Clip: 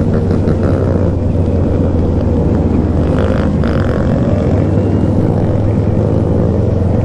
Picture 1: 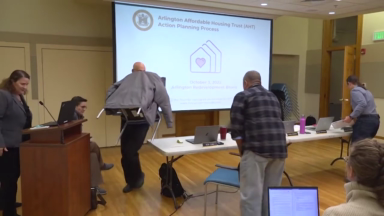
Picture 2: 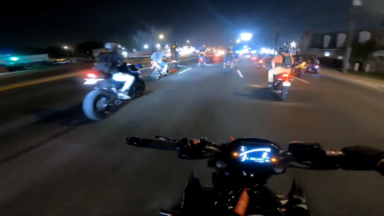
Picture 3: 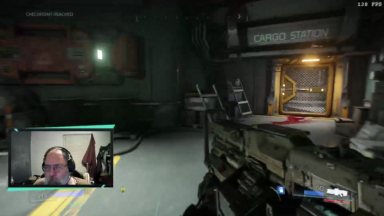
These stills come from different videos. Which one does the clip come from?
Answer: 2